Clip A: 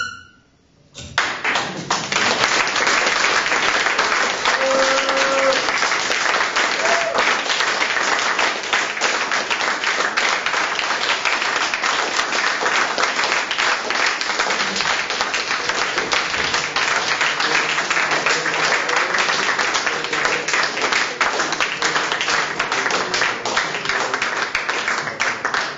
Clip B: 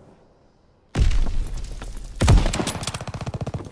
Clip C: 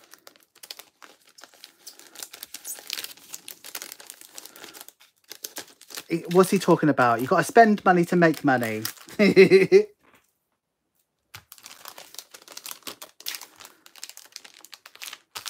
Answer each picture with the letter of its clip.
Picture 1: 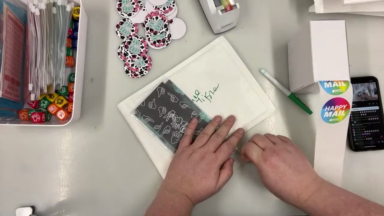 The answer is C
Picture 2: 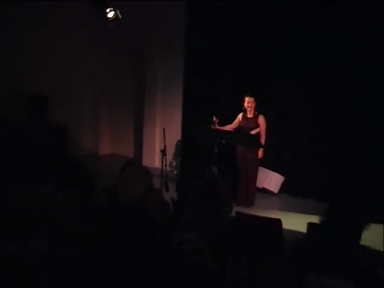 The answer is A